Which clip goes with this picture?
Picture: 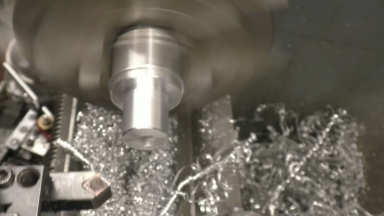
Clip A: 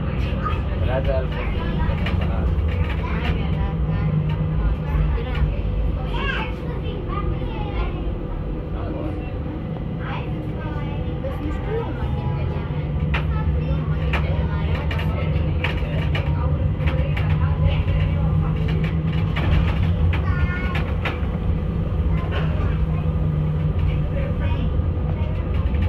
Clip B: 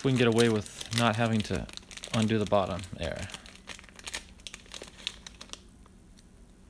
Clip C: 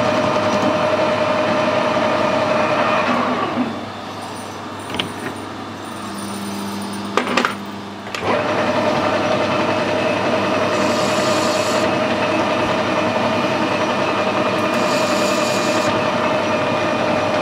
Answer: C